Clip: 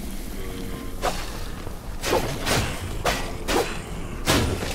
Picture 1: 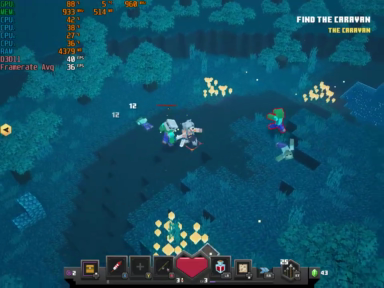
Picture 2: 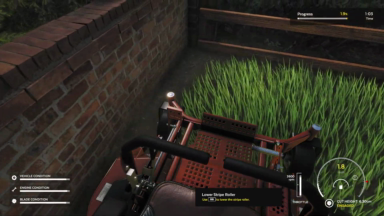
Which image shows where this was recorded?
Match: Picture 1